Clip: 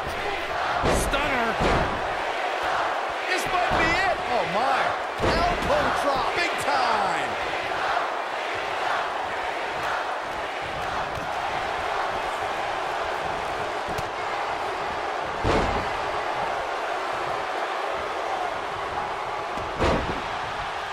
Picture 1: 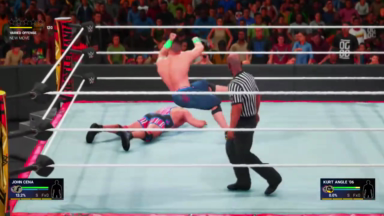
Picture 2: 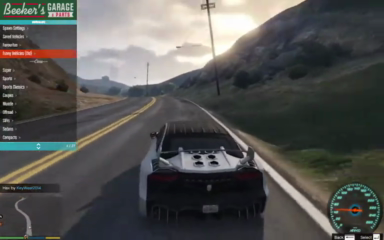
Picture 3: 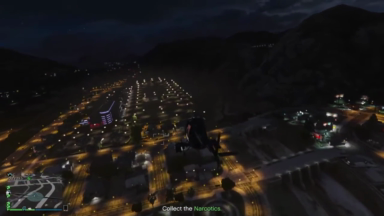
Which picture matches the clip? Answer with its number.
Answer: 1